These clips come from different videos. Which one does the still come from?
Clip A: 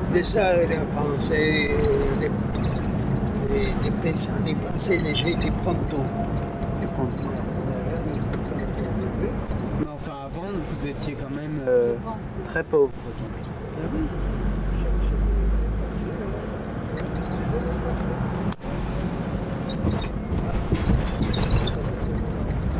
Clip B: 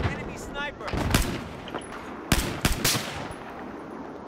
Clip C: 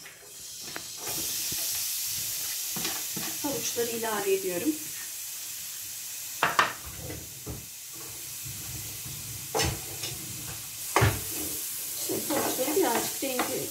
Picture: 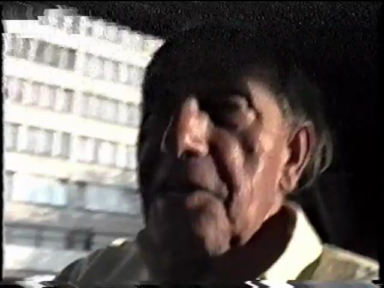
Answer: A